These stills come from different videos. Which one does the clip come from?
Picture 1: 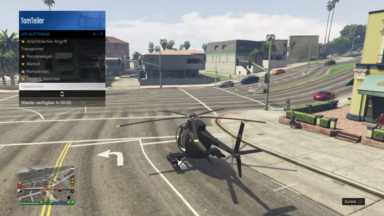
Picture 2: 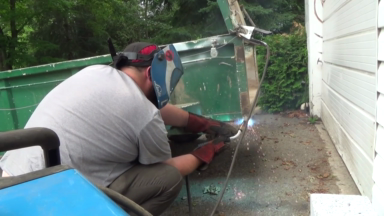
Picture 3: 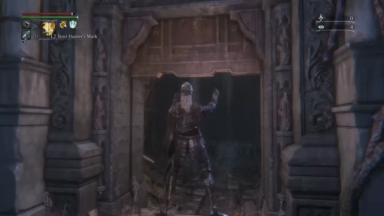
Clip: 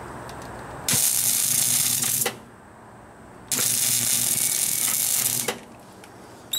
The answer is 2